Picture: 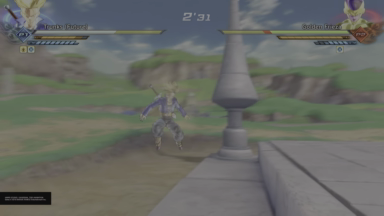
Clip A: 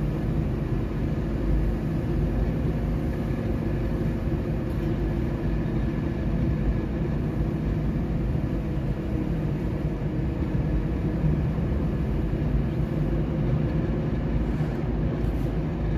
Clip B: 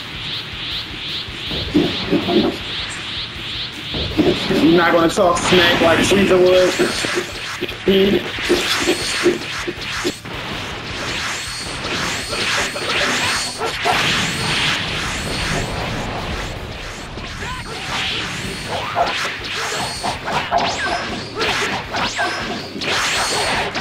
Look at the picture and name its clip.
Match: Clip B